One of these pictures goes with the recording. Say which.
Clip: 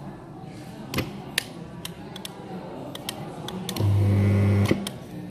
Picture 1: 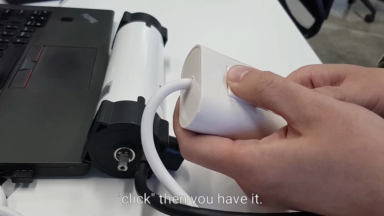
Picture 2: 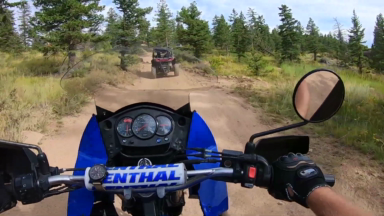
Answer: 1